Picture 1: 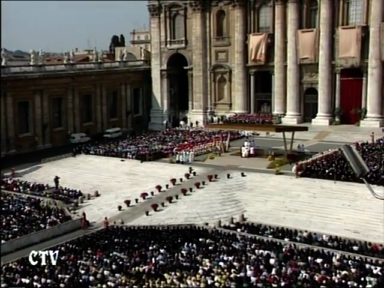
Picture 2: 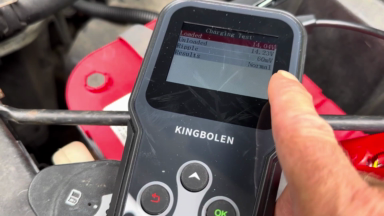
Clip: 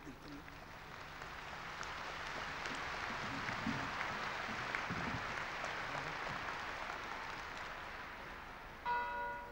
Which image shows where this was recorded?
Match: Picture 1